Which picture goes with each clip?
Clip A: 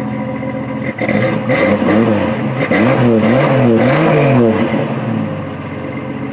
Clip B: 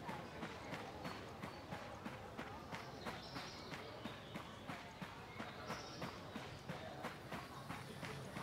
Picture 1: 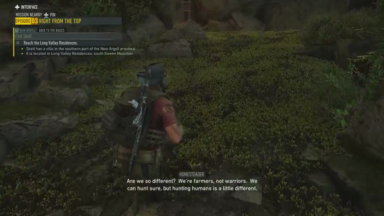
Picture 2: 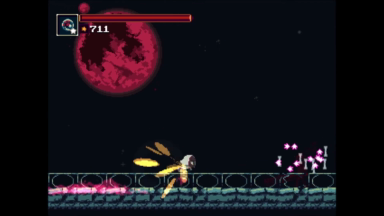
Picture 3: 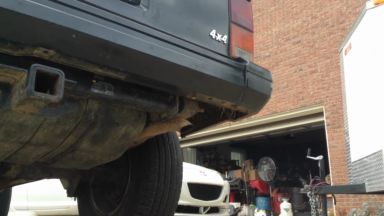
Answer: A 3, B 1